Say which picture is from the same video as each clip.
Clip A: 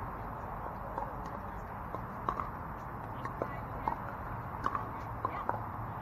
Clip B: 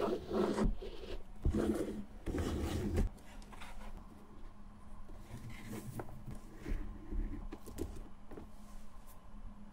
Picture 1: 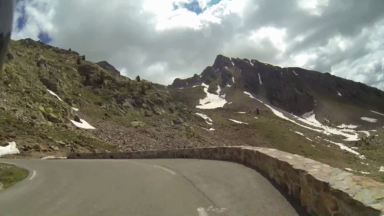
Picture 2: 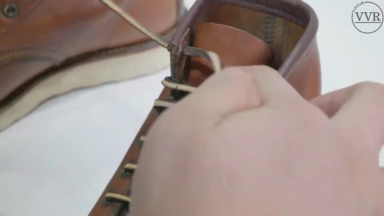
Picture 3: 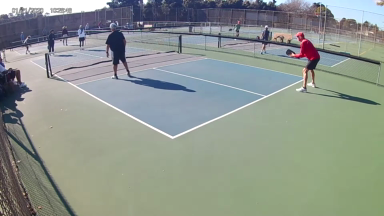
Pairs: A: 3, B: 2